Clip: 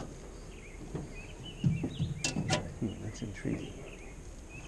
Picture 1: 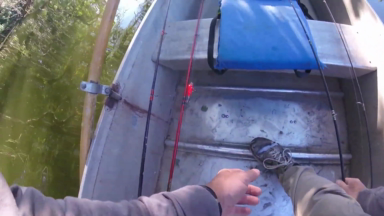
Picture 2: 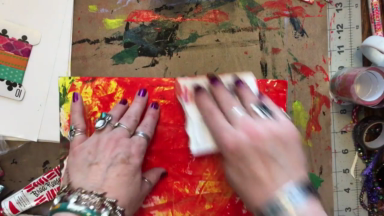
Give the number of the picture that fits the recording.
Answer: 1